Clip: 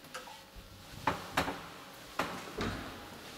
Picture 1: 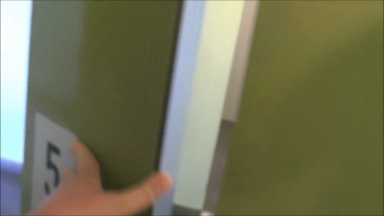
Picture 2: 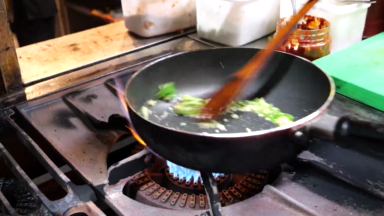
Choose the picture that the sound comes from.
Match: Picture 1